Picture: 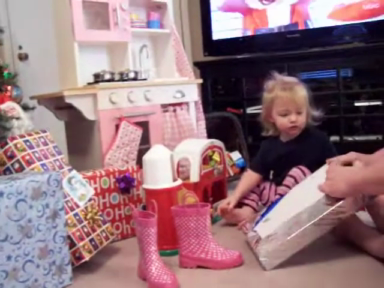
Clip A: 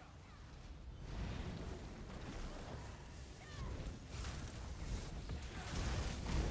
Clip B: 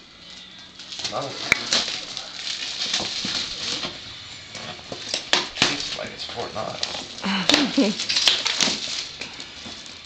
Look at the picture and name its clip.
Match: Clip B